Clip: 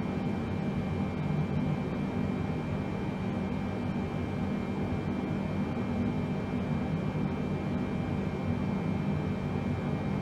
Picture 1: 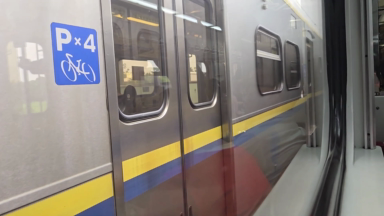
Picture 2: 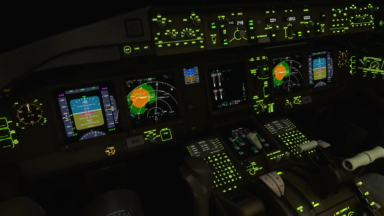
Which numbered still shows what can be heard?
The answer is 2